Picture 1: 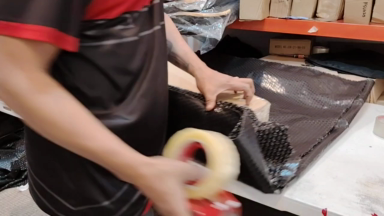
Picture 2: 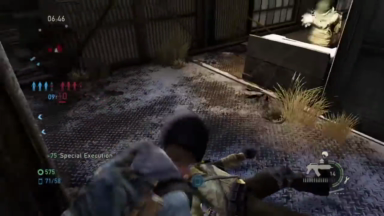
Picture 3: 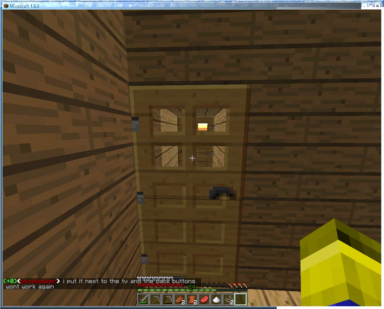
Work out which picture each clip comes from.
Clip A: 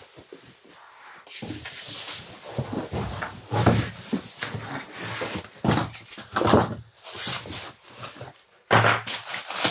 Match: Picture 1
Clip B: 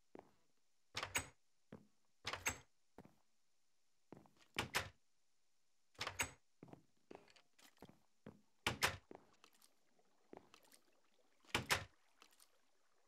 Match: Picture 3